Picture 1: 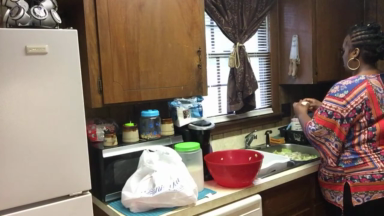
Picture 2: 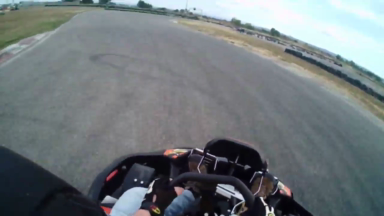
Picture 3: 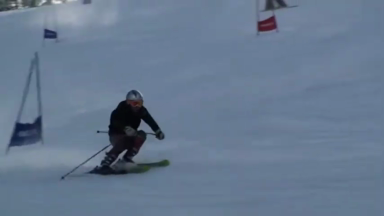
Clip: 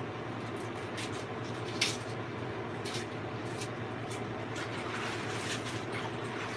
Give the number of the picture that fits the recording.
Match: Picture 1